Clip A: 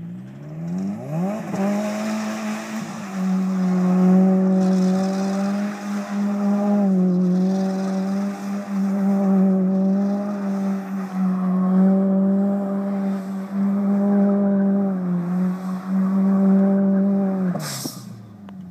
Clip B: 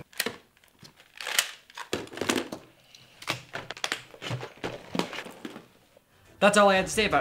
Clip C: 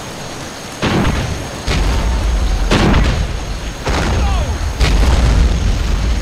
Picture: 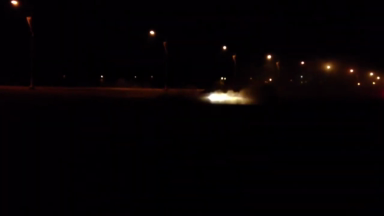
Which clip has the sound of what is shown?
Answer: A